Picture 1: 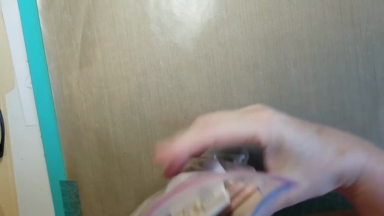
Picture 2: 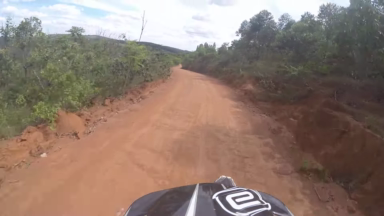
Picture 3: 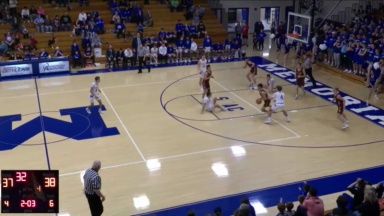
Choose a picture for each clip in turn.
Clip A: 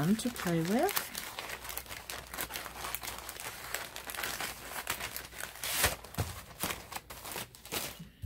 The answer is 1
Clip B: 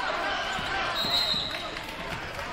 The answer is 3